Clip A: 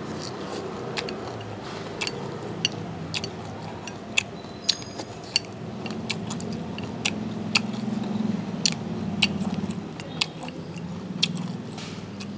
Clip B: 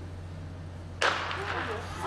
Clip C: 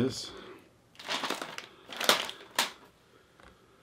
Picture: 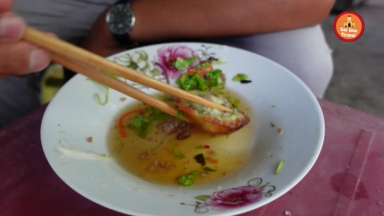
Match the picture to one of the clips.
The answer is A